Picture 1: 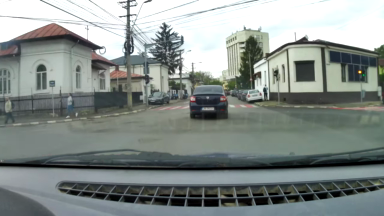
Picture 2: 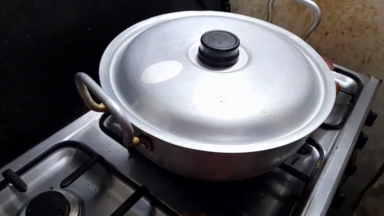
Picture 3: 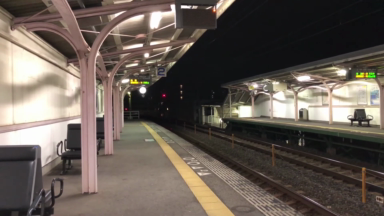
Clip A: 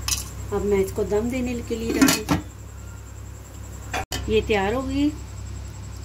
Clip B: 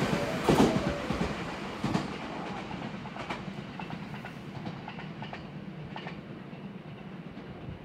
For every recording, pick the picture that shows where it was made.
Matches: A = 2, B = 3